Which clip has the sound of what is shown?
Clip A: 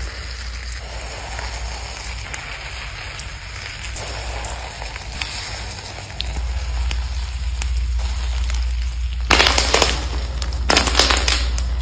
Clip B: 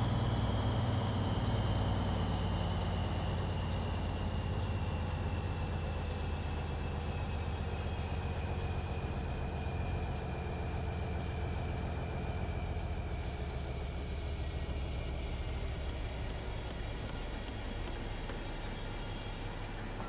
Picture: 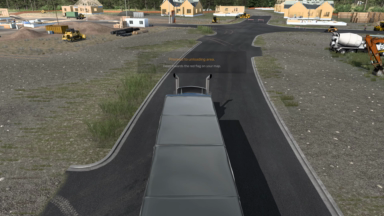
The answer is B